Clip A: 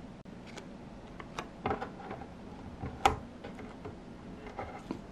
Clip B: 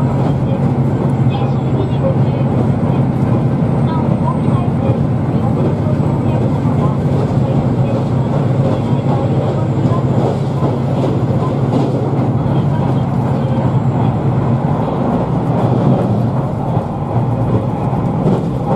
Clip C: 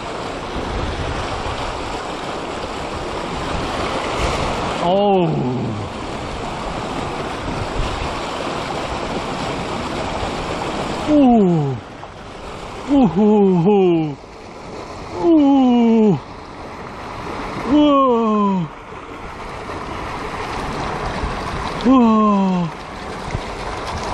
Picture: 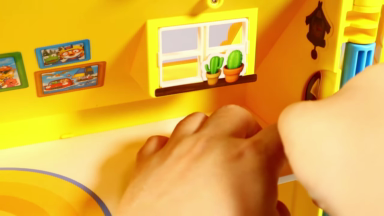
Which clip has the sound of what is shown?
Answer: A